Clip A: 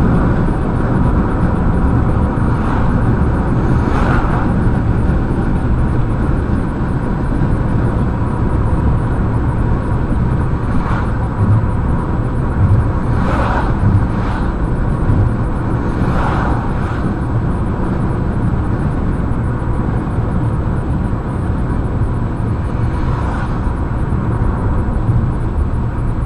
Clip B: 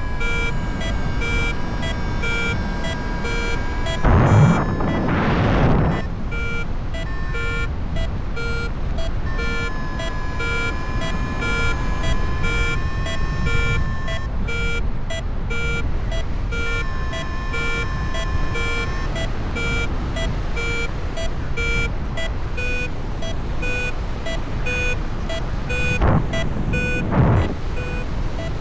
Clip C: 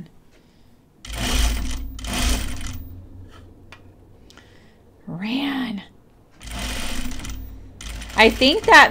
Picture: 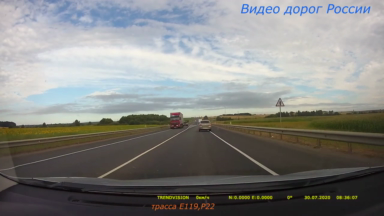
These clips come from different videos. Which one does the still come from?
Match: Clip A